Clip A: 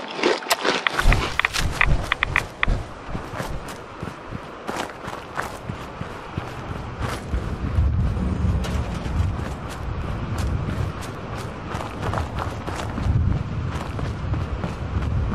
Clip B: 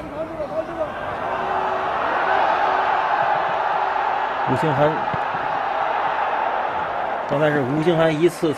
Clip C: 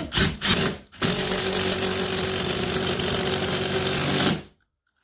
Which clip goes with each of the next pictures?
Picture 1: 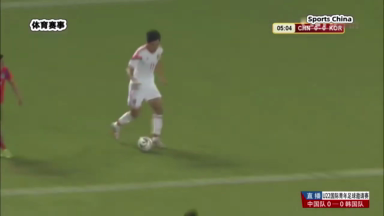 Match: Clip B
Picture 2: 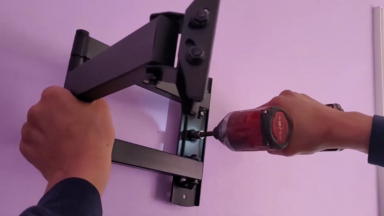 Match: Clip C